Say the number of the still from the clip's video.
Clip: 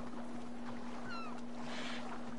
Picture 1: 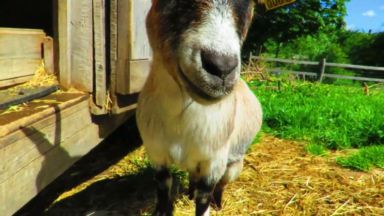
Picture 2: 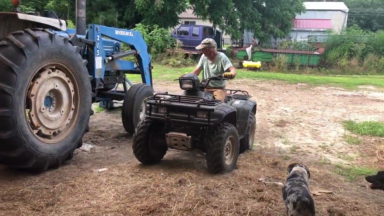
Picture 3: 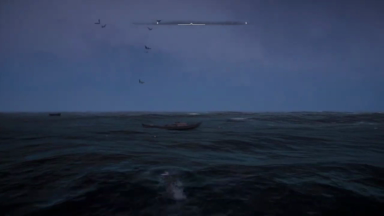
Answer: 3